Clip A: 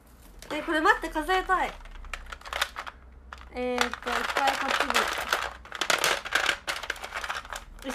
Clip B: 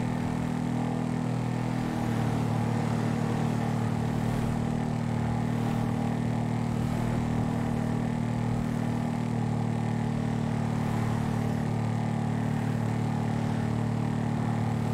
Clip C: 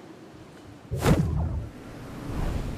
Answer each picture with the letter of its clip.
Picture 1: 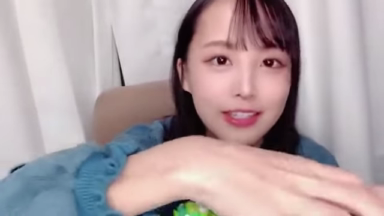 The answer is A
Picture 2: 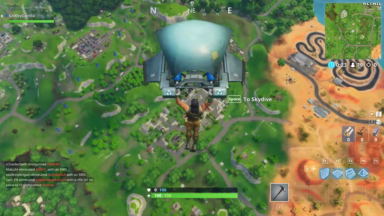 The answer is C